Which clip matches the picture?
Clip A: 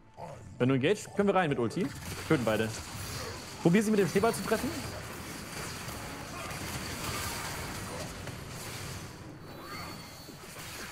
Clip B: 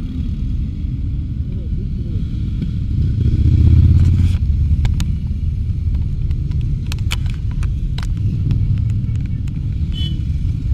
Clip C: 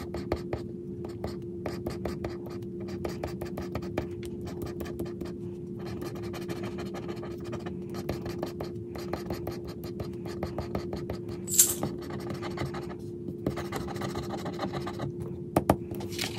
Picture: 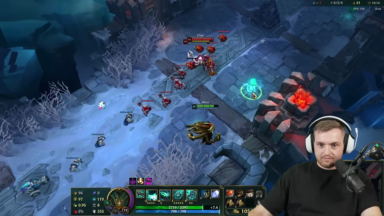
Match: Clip A